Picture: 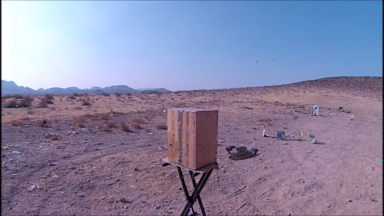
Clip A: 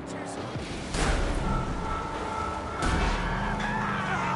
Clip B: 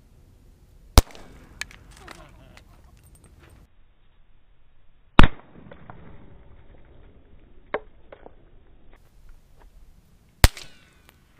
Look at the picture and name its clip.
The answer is B